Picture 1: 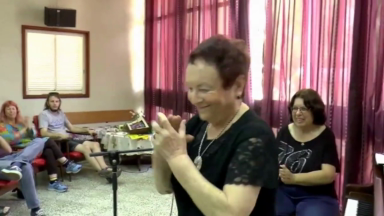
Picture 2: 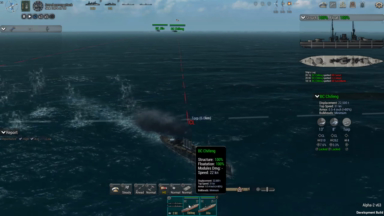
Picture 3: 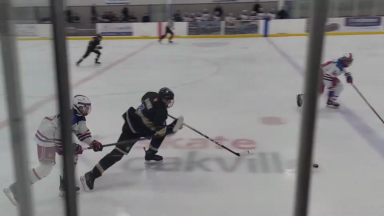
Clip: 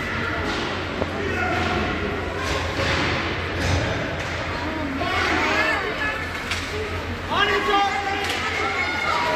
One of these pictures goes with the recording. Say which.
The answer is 3